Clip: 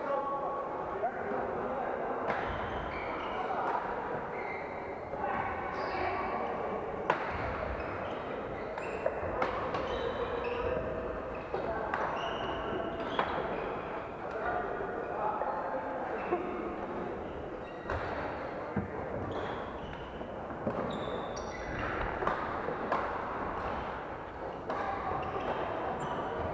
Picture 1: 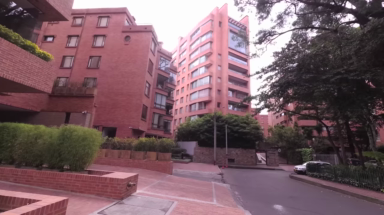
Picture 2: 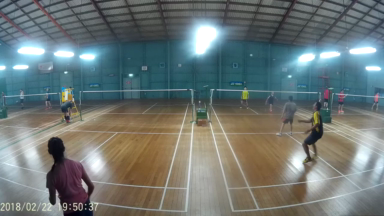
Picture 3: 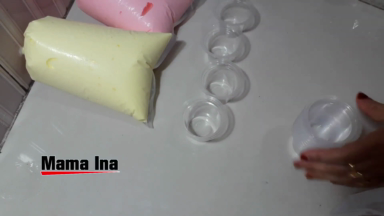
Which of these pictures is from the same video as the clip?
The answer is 2